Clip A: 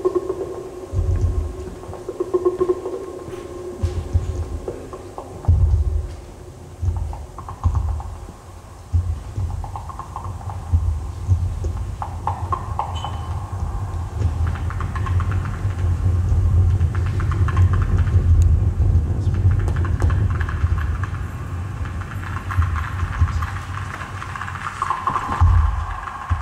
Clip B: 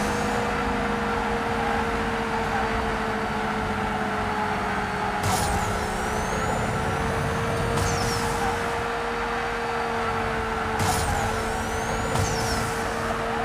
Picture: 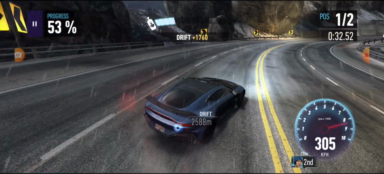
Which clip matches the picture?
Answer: B